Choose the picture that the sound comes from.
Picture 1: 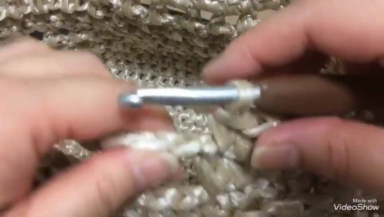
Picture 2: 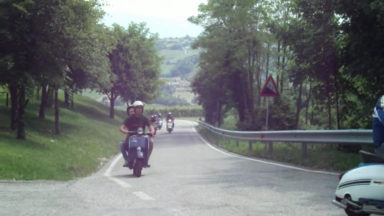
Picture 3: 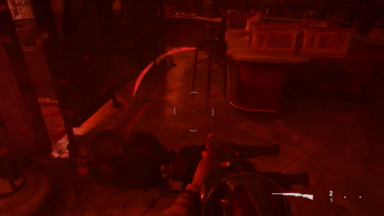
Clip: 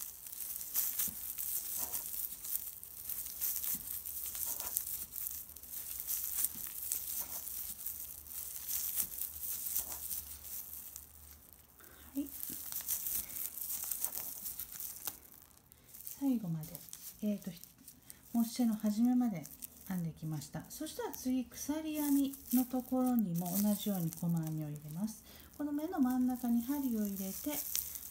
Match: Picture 1